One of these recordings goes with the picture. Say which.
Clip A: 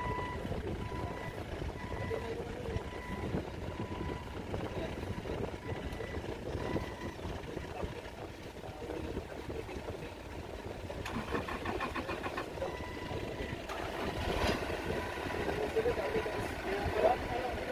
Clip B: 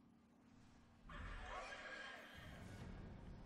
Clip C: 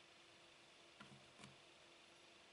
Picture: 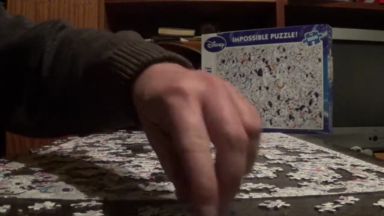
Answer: C